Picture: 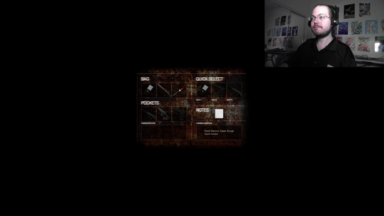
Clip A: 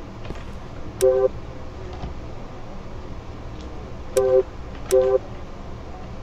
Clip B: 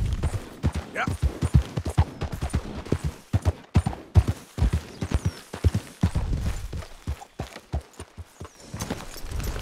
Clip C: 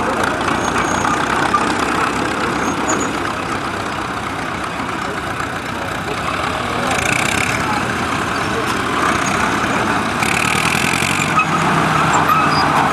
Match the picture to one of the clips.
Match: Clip A